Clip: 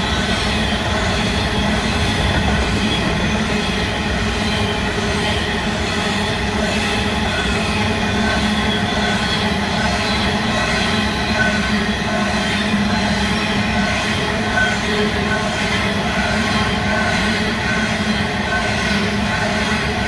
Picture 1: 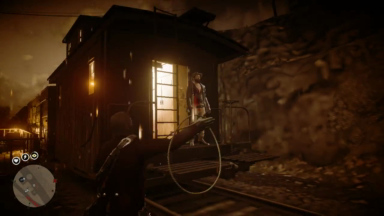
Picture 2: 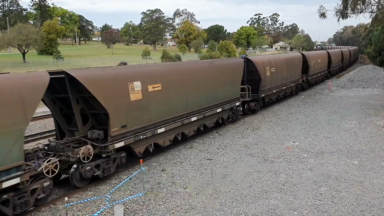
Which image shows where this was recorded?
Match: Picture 2